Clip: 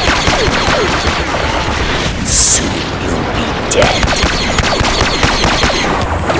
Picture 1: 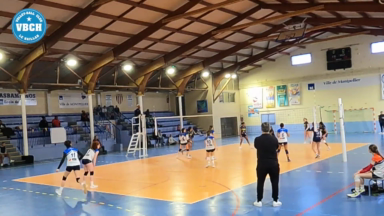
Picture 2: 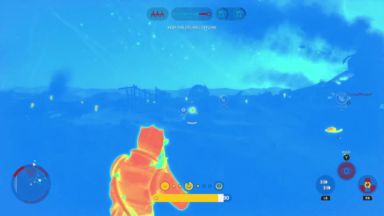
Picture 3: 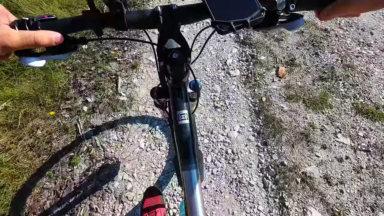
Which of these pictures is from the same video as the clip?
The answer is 2